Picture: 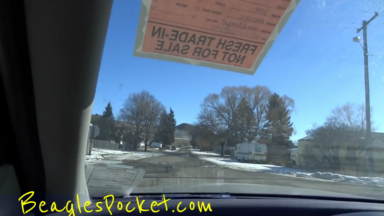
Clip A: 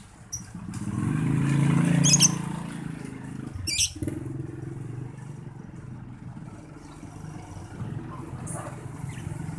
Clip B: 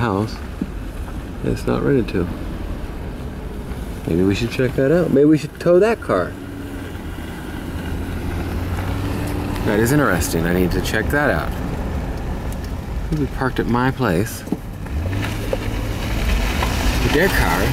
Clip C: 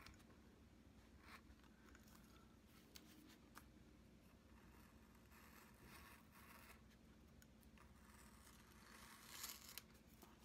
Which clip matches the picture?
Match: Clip B